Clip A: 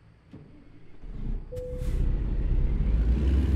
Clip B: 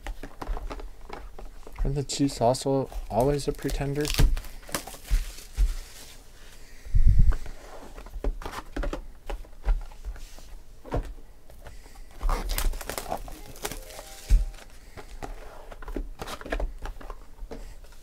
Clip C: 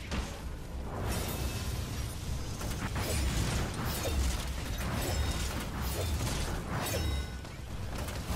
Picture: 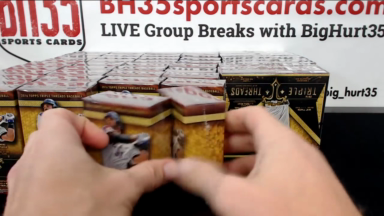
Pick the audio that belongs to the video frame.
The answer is B